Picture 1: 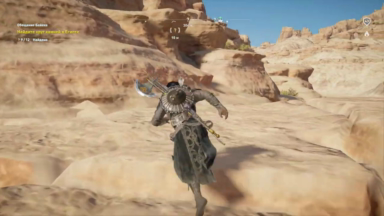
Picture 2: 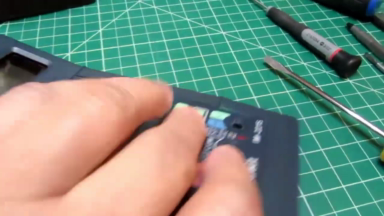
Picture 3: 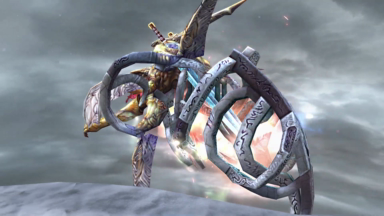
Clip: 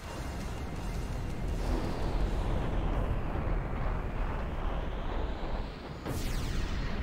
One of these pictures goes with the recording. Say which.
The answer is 3